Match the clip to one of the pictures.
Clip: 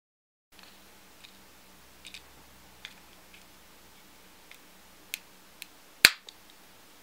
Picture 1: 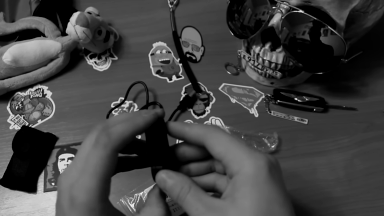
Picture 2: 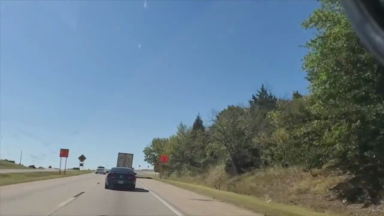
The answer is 1